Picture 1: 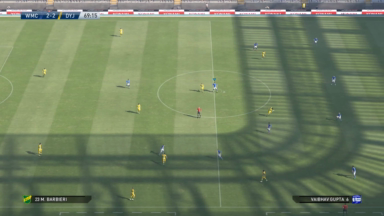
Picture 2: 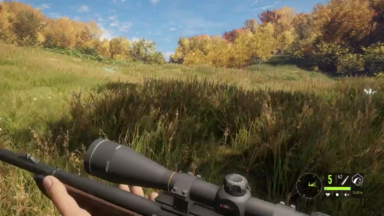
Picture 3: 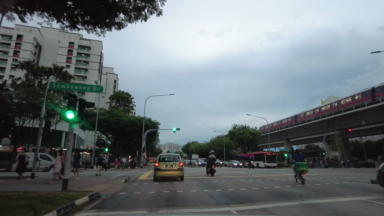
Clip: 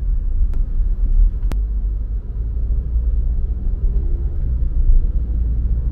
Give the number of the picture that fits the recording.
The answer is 3